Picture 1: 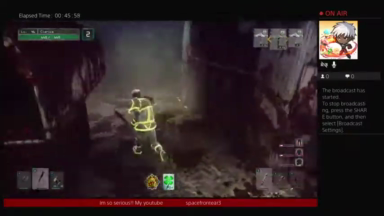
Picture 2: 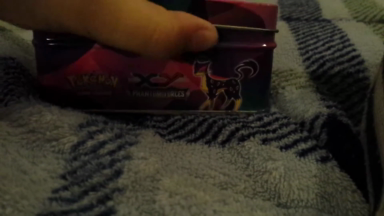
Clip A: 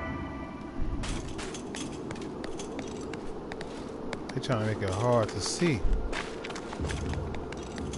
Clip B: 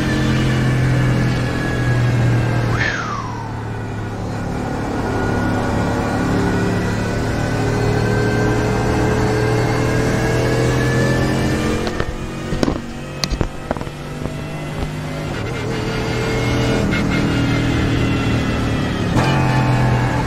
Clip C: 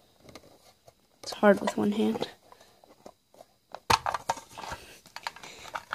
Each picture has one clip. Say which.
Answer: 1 A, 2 C